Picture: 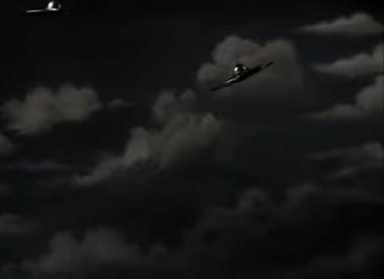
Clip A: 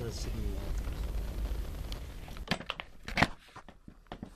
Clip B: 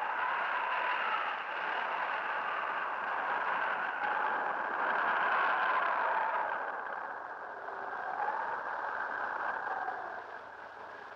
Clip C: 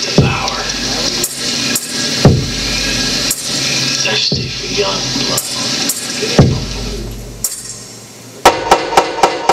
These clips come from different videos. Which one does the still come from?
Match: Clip B